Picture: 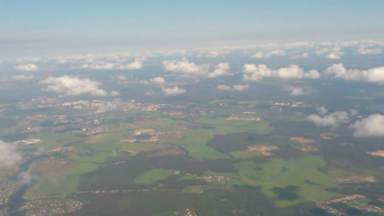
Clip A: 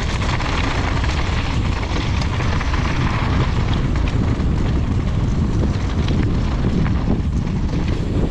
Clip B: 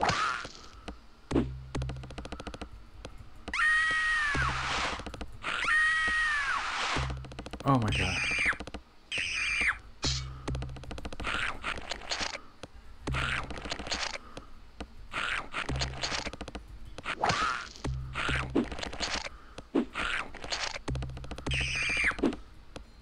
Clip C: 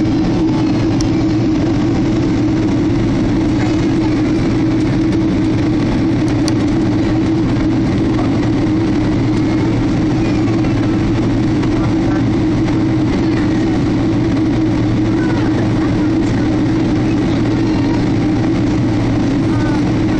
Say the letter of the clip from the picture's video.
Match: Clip C